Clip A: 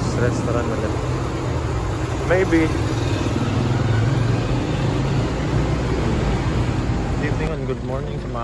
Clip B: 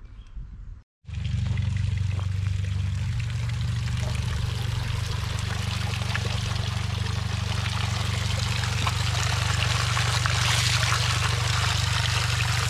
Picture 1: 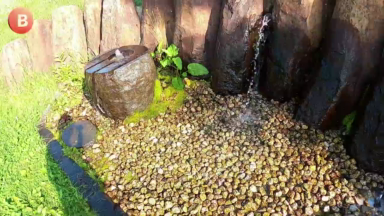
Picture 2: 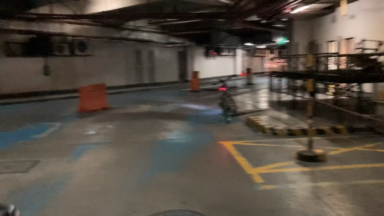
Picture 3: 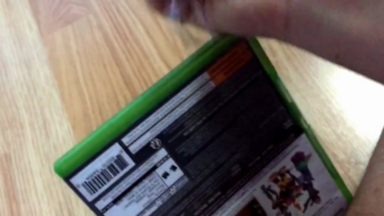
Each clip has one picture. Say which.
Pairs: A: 2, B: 1